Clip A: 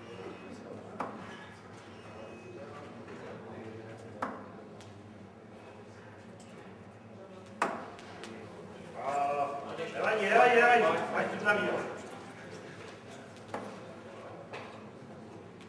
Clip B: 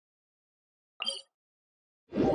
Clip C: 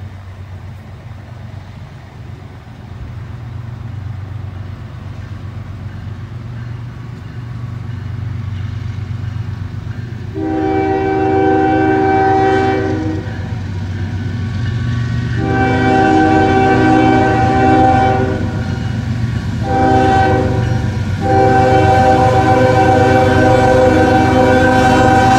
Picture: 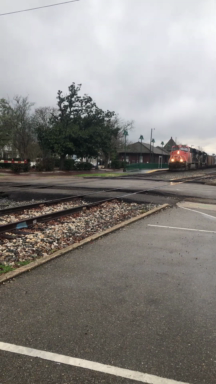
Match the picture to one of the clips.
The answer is C